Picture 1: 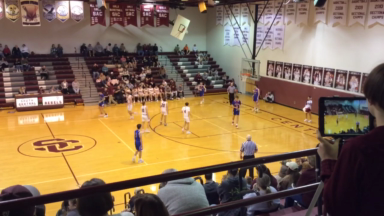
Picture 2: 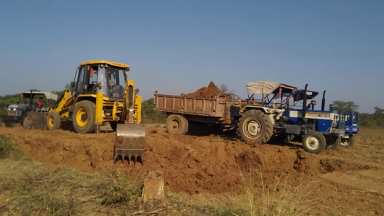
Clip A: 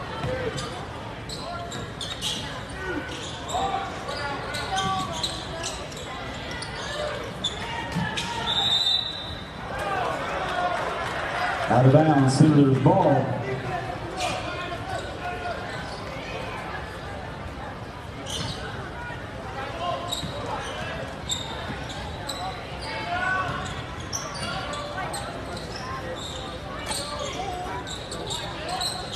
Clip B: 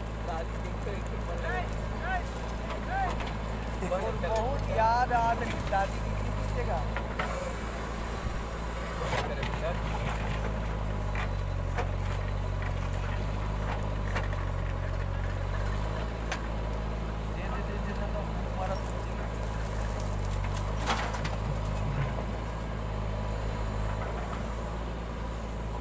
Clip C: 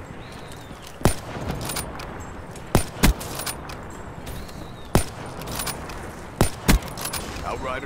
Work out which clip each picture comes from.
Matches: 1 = A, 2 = B